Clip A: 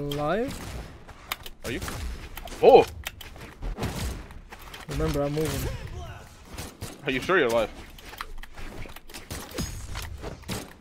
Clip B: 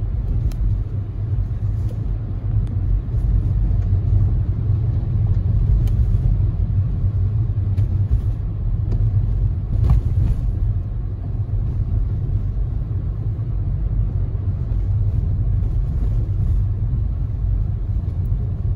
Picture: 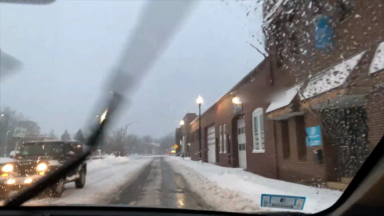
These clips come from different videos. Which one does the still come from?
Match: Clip B